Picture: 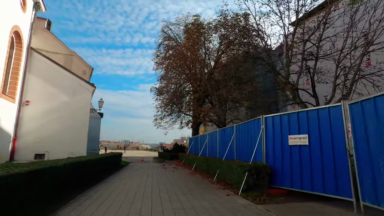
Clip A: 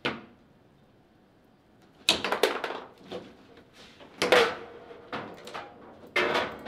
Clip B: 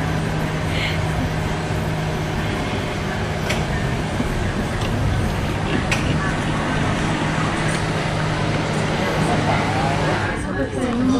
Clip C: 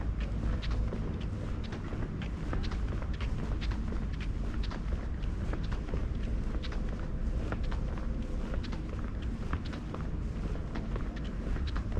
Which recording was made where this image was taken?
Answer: C